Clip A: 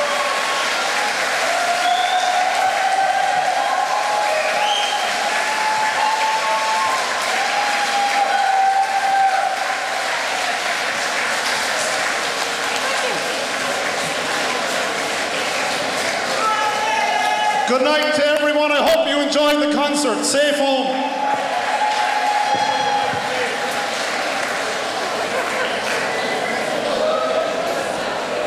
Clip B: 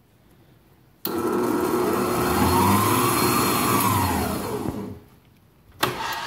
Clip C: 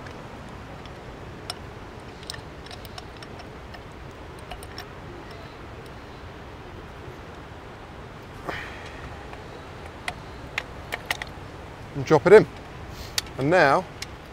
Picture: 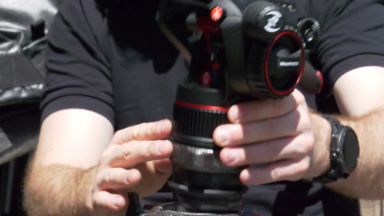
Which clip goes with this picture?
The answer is C